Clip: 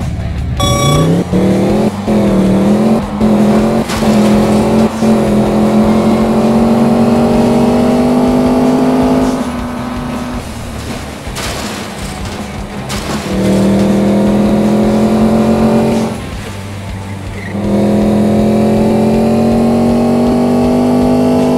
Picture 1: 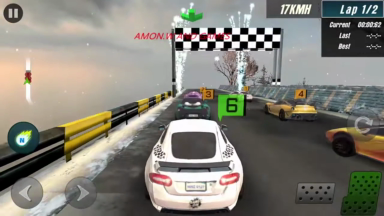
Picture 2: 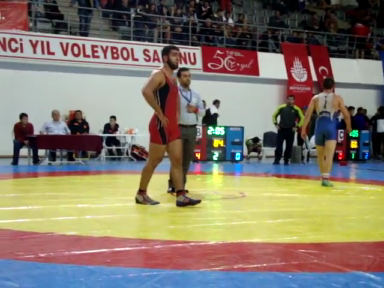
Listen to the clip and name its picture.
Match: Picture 1